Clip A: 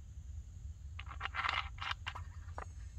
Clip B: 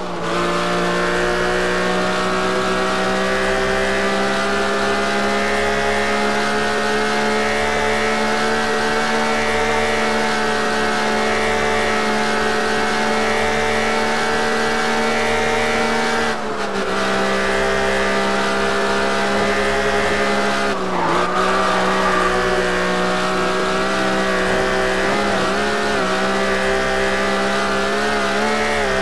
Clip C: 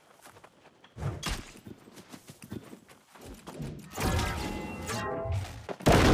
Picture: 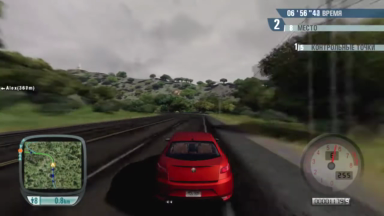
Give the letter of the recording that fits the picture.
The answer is B